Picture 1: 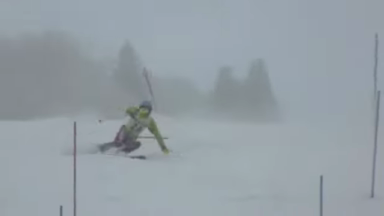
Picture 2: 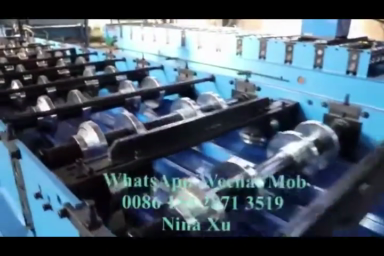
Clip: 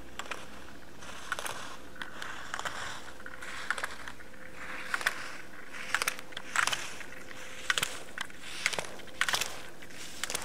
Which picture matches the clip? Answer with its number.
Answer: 1